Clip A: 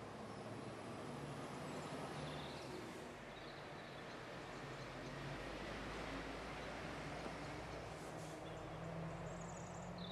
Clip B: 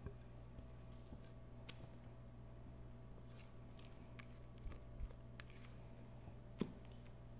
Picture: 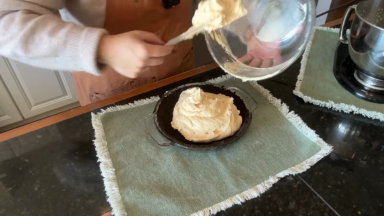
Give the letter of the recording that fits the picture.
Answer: B